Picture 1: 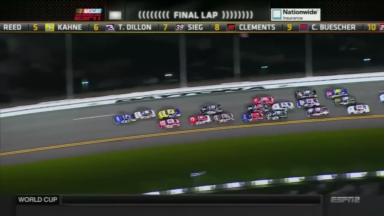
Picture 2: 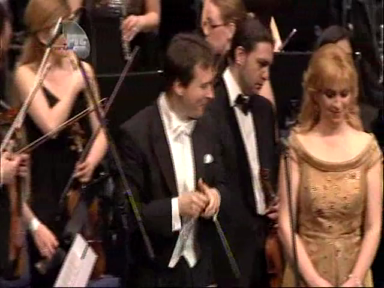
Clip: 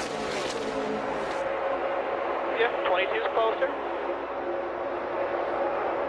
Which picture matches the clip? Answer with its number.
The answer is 1